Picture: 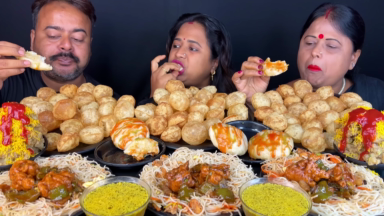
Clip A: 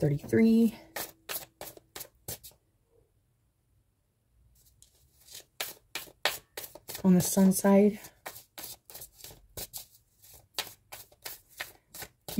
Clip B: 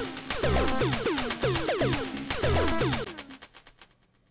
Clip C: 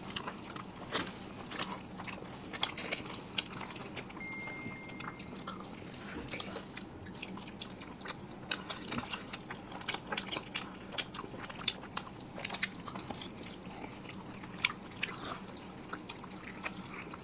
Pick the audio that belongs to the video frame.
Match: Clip C